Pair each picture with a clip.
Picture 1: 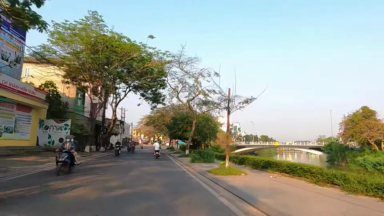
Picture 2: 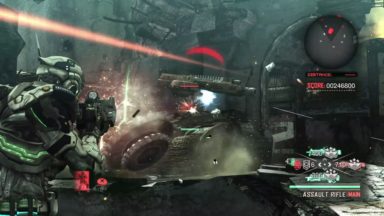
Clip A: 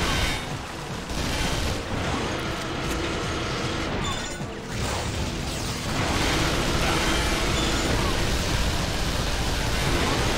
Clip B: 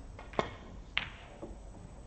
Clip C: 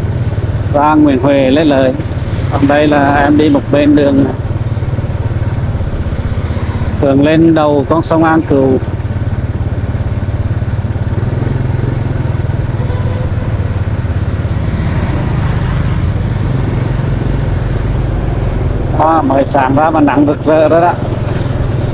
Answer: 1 C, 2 A